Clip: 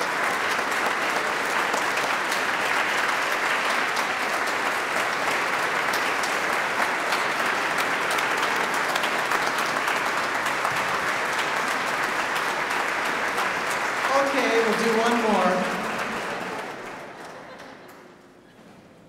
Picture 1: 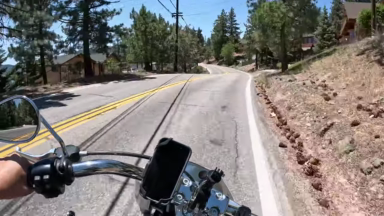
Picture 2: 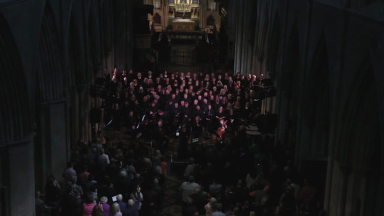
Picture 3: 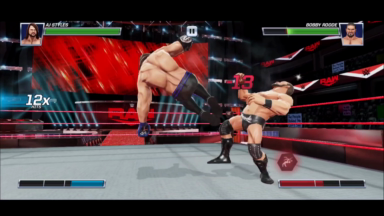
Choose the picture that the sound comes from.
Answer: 2